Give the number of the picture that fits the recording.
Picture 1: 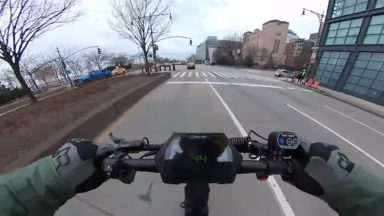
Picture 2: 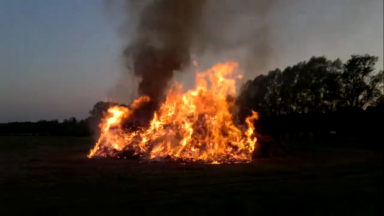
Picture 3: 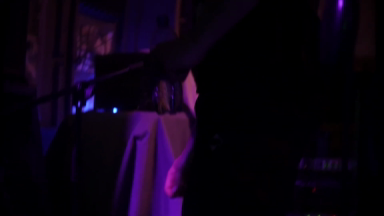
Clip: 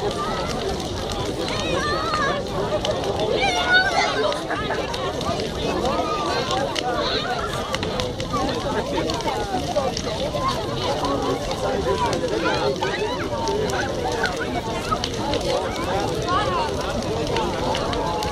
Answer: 2